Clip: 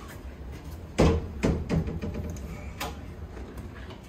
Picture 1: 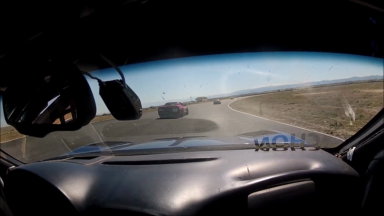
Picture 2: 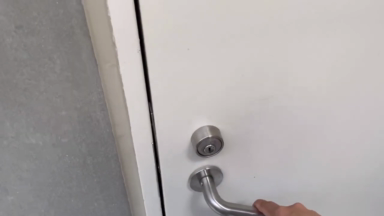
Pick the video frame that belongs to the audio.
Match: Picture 2